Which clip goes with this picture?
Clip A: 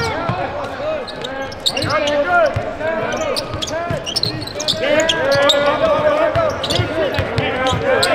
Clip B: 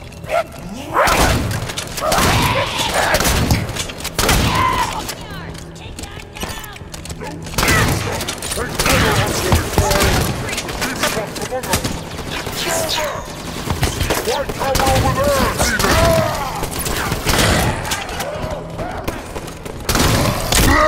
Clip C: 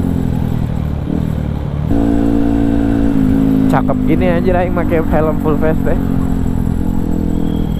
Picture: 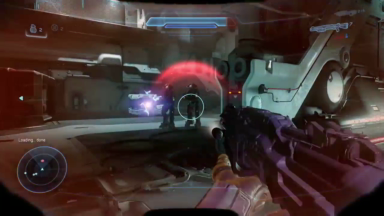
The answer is B